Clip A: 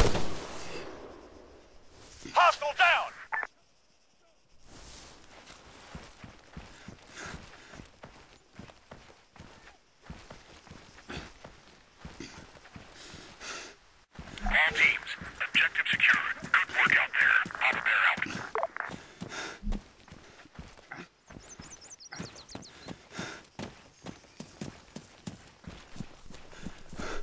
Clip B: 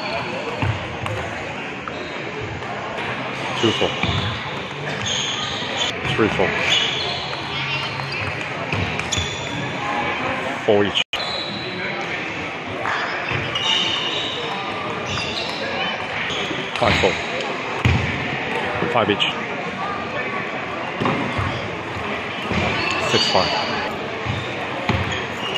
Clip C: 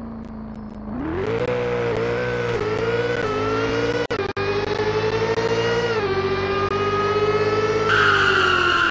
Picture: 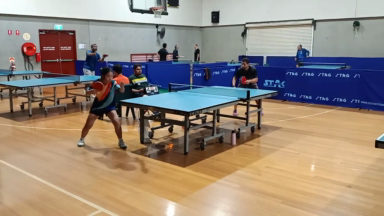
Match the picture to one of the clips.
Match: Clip B